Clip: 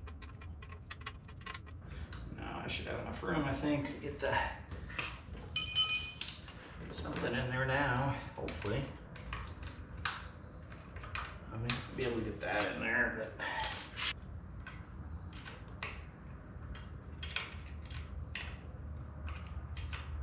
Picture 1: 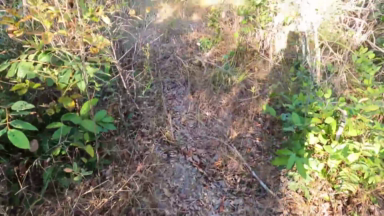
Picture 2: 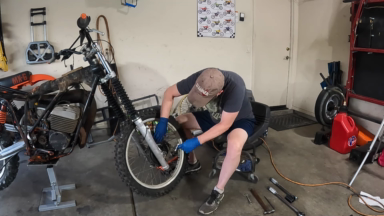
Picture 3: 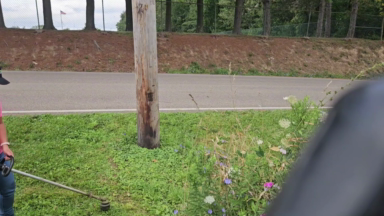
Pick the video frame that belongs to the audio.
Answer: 2